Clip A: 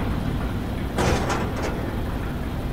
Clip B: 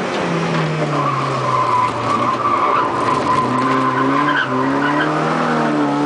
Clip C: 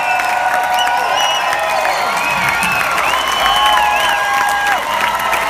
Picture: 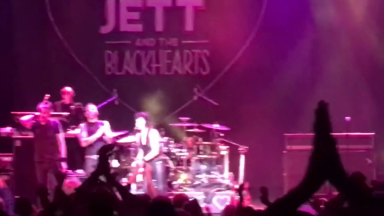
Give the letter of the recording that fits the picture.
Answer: C